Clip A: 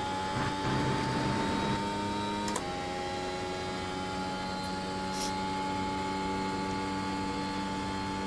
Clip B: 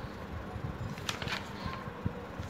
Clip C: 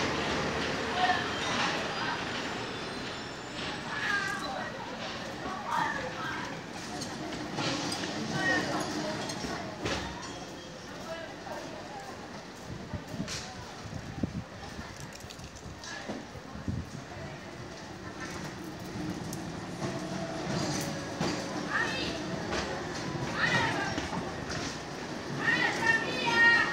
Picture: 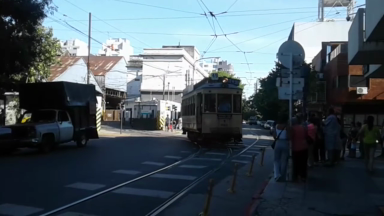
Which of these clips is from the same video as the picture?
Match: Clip C